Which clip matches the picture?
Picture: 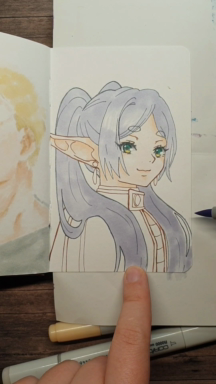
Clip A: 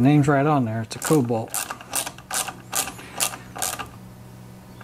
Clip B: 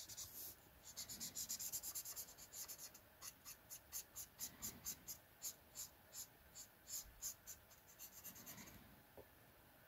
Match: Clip B